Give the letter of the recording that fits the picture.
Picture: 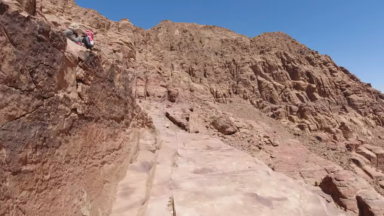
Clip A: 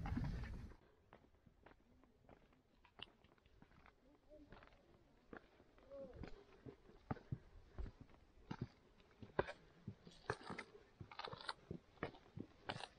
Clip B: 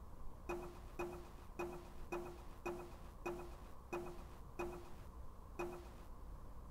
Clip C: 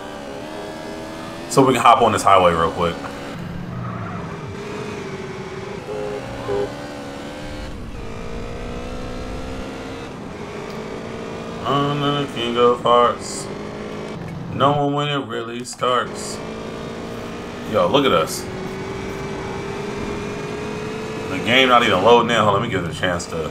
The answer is A